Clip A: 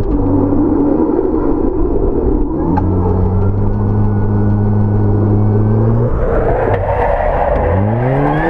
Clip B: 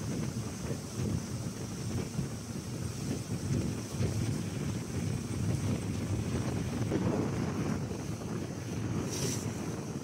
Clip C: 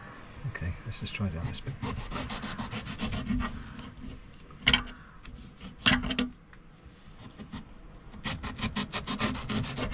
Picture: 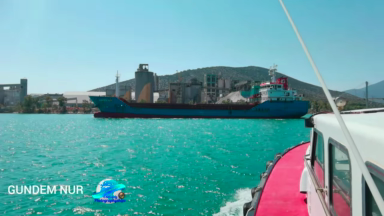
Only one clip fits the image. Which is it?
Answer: B